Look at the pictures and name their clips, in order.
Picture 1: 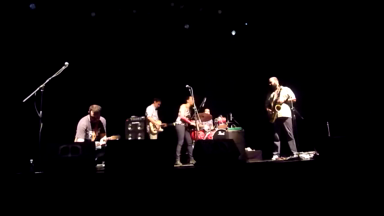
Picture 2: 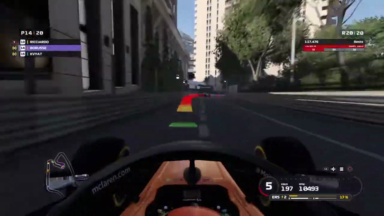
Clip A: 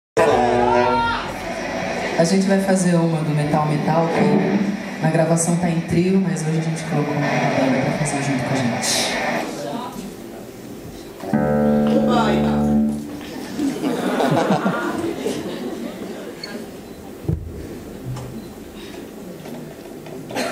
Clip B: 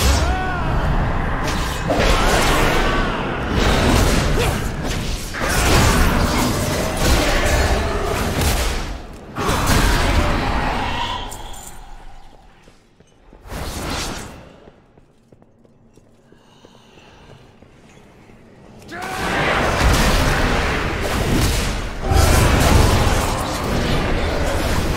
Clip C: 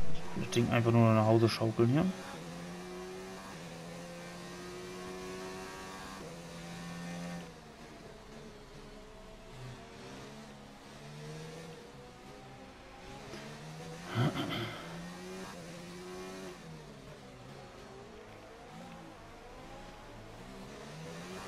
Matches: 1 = A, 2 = C